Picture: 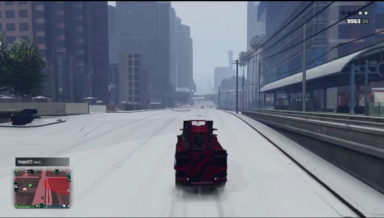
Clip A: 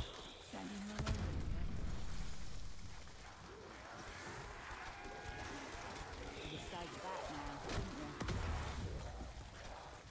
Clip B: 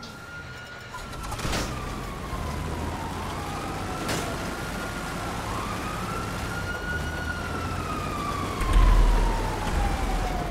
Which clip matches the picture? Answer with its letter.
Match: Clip B